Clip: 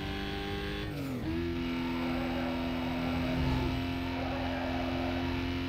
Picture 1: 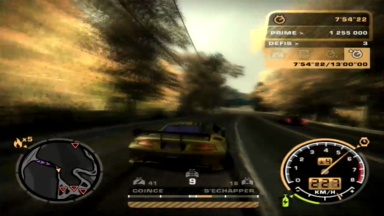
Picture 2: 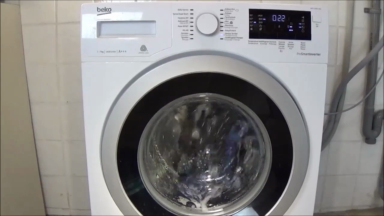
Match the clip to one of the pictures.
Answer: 1